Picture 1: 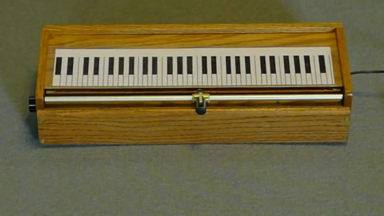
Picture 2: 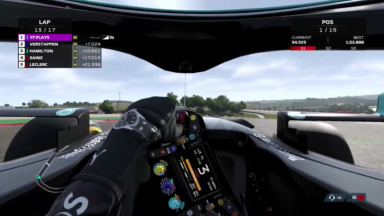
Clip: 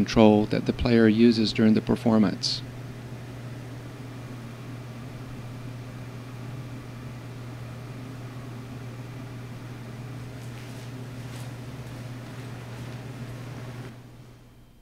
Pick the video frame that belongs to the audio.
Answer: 1